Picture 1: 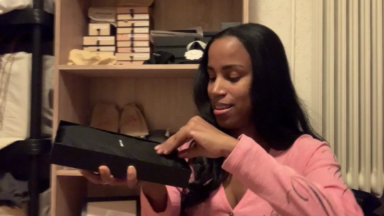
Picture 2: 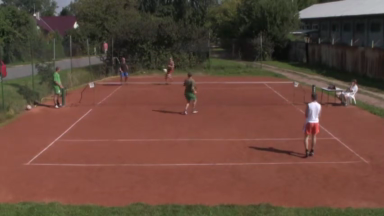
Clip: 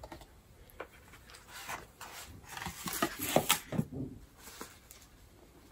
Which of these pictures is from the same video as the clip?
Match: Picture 1